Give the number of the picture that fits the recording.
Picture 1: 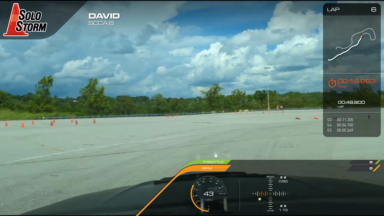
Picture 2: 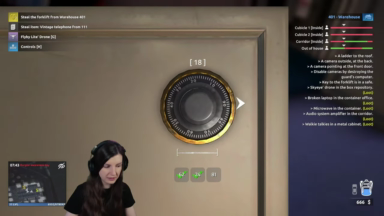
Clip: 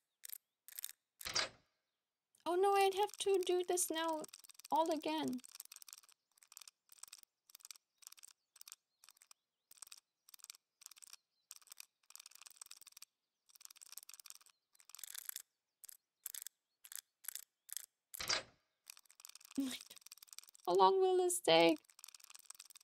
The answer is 2